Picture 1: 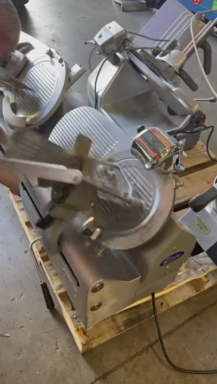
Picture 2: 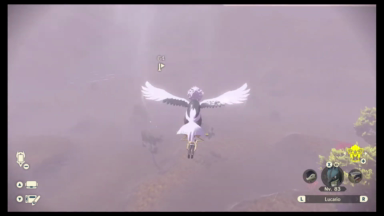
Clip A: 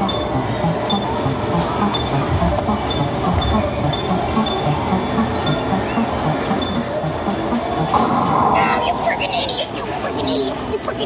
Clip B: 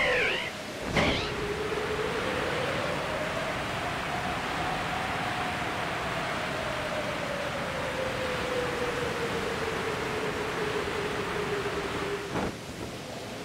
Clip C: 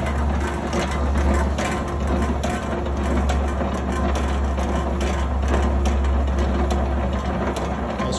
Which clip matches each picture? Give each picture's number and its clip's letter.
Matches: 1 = C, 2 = B